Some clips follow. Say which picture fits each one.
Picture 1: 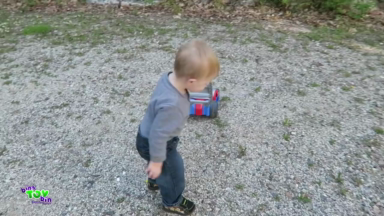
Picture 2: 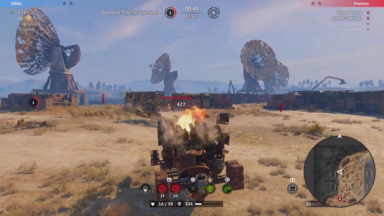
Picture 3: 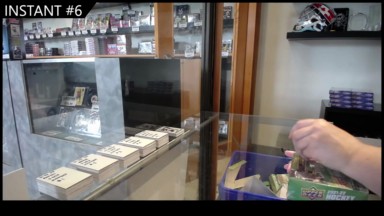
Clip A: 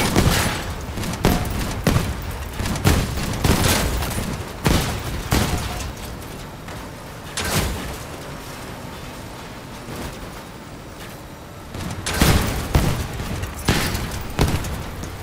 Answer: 2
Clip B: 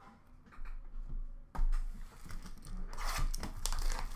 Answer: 3